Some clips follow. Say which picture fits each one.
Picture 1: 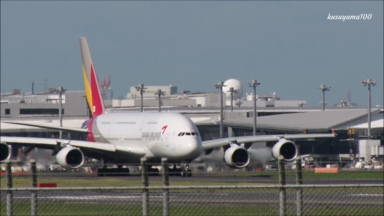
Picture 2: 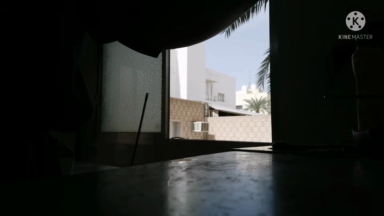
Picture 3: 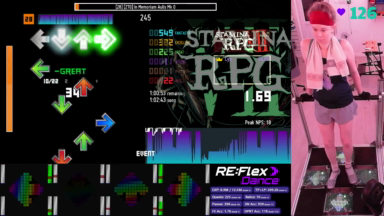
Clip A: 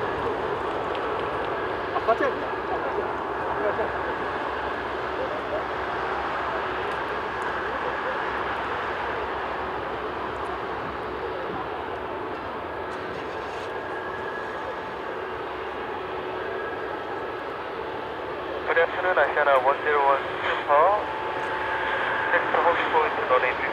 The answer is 1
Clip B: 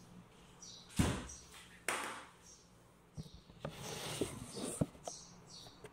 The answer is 2